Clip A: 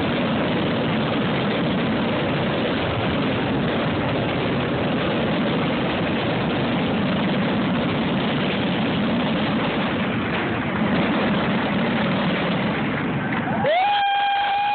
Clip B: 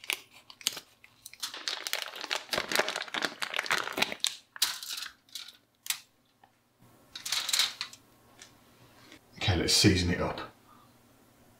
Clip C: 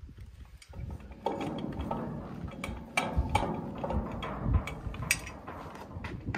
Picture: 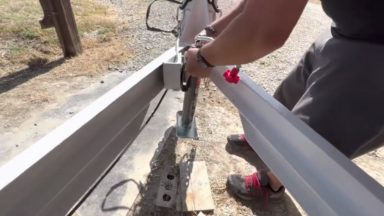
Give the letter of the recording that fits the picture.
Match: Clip C